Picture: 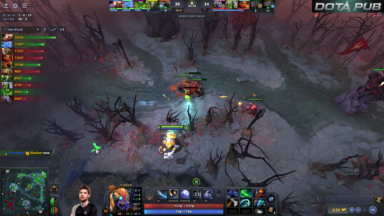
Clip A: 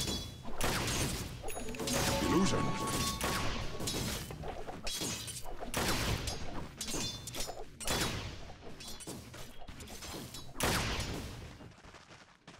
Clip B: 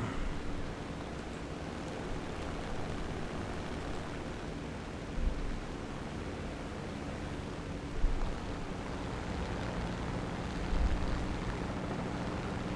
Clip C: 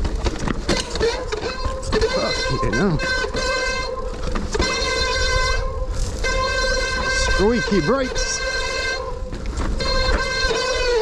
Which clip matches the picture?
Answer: A